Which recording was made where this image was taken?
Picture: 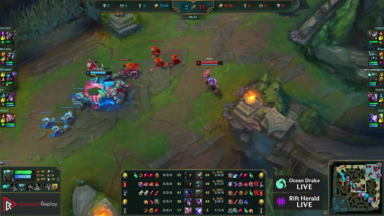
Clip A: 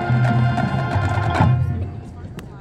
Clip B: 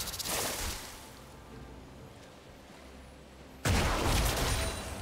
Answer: B